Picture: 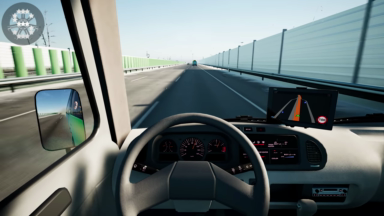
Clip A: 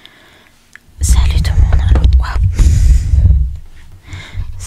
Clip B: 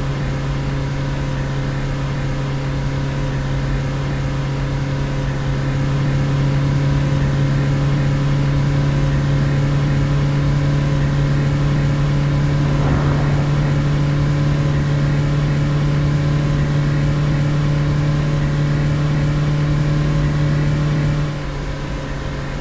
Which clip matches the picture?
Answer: B